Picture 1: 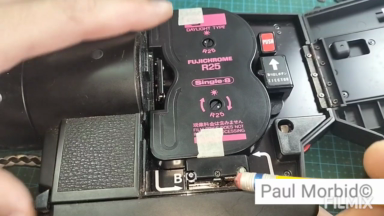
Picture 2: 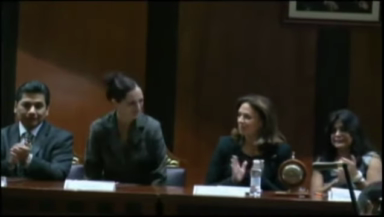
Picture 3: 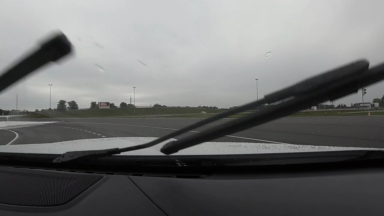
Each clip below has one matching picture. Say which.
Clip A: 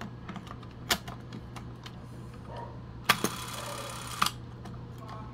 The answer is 1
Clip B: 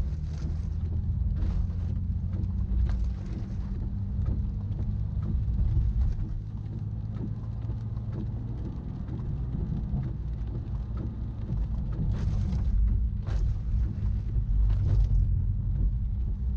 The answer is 3